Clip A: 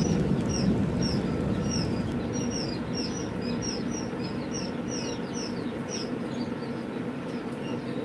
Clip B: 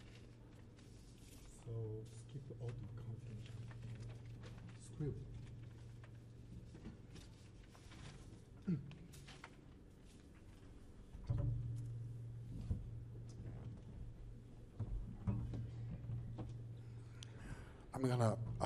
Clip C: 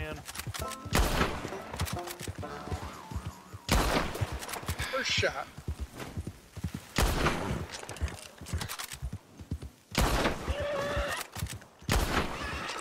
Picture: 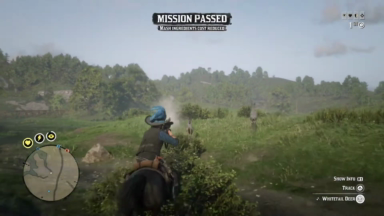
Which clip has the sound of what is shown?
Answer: C